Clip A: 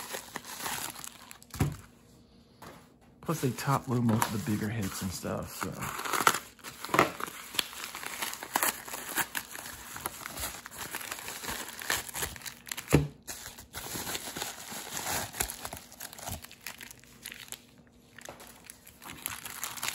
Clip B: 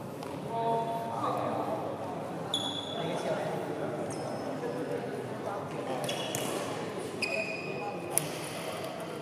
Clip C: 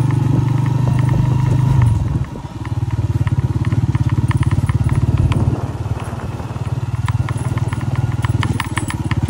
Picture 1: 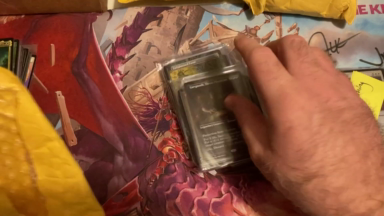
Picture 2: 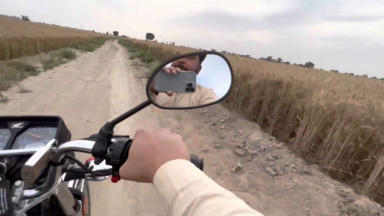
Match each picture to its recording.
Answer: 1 A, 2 C